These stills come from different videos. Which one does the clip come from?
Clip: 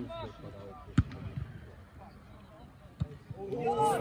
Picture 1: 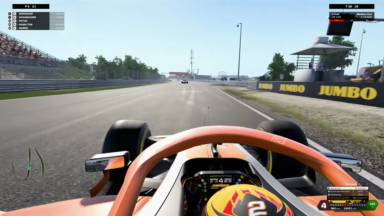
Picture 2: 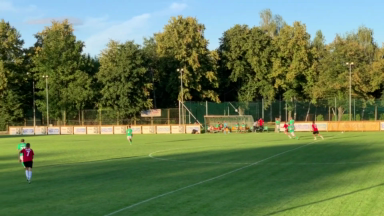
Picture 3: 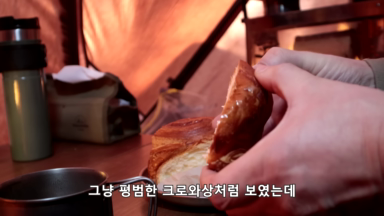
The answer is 2